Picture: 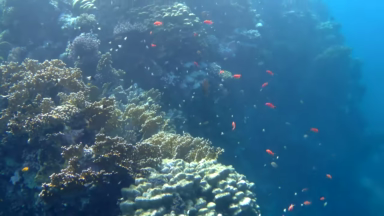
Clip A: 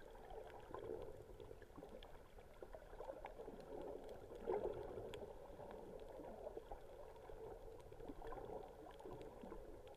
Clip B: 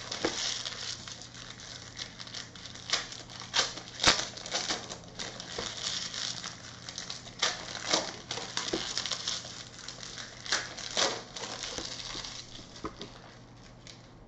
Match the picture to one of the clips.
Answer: A